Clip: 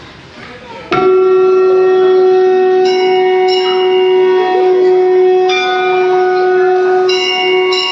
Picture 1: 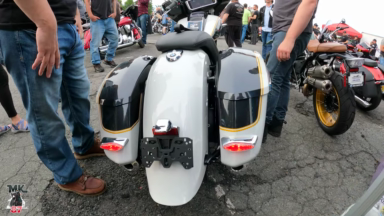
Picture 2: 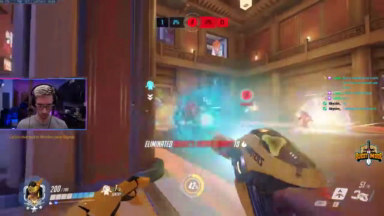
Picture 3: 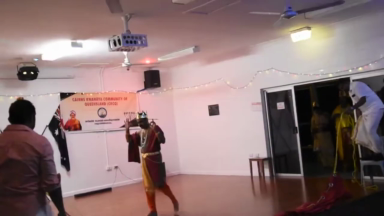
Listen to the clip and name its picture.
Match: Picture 3